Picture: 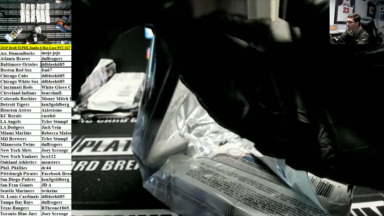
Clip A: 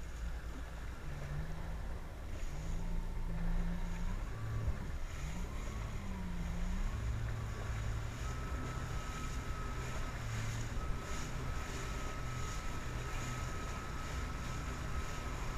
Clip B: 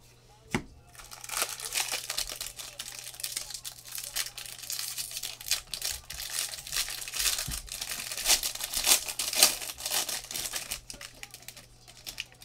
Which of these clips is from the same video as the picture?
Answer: B